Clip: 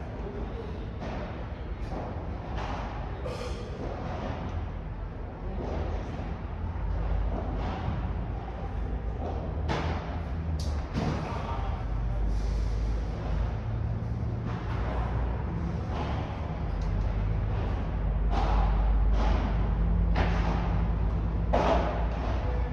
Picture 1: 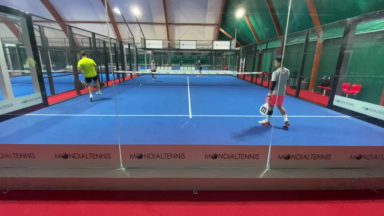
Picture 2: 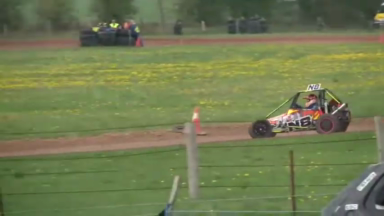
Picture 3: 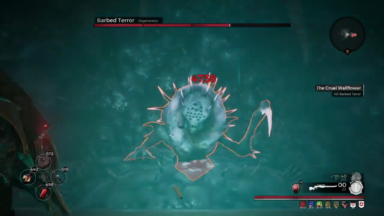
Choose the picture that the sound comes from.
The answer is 1